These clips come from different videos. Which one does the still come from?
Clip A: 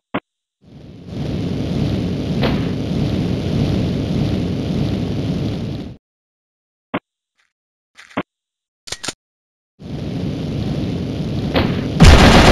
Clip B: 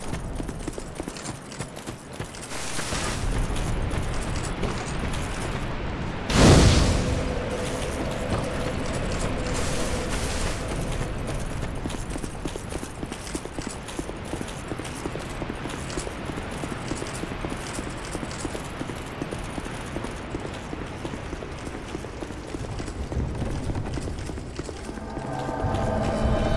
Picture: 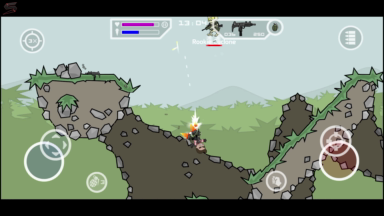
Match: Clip A